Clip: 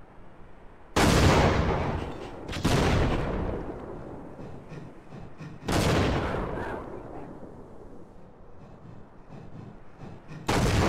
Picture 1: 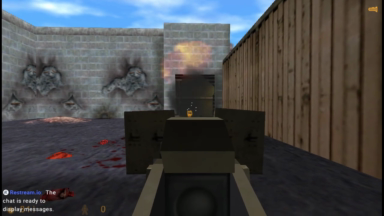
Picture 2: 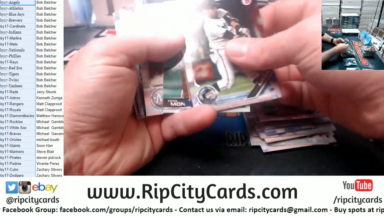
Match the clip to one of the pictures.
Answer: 1